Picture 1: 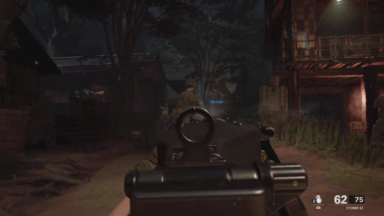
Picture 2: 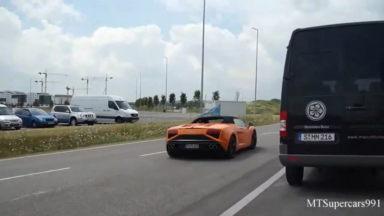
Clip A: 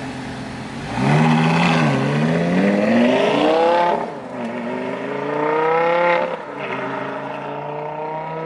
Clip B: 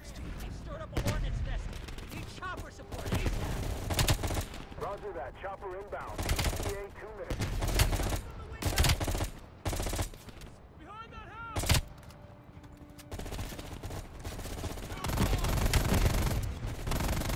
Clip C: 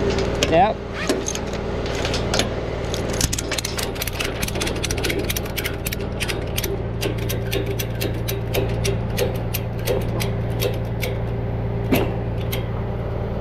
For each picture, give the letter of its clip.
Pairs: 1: B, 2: A